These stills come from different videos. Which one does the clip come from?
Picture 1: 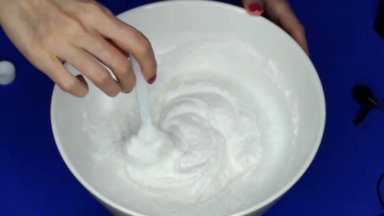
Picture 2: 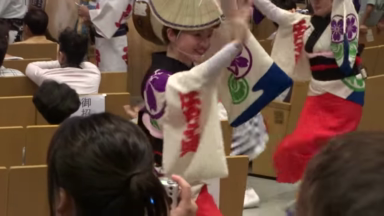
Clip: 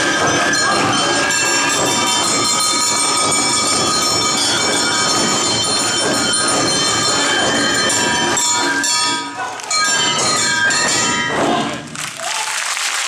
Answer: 2